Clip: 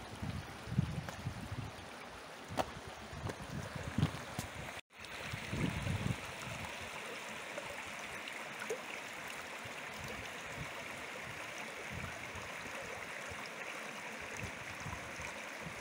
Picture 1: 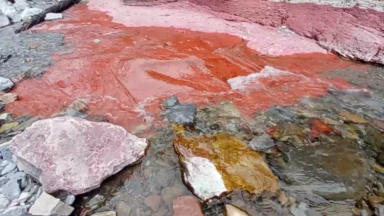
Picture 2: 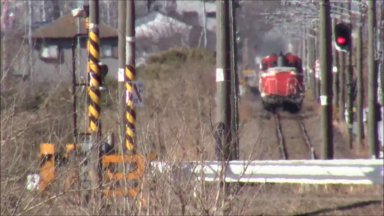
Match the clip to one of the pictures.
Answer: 1